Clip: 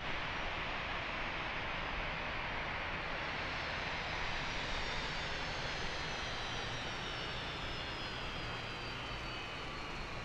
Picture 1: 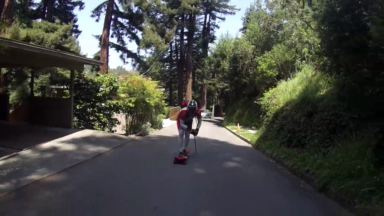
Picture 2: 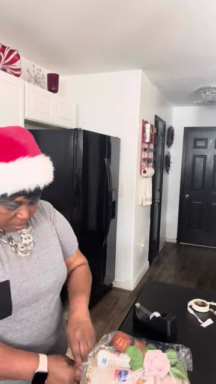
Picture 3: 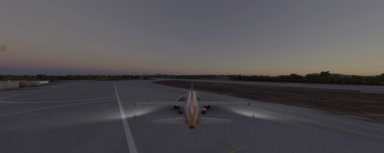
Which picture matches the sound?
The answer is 3